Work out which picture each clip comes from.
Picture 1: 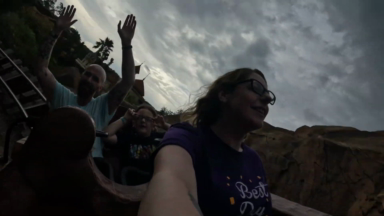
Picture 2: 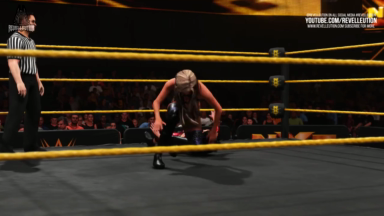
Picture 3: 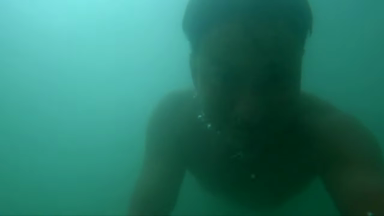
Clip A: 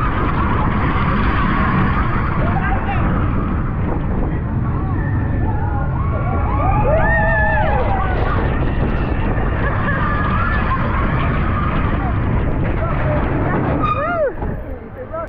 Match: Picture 1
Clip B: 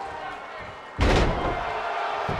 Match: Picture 2